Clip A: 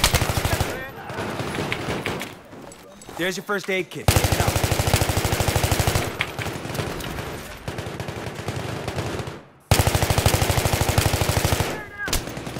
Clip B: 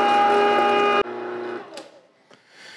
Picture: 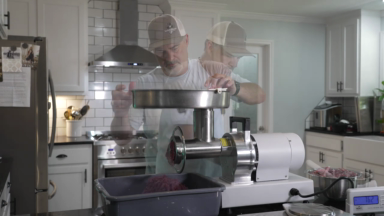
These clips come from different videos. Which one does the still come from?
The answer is B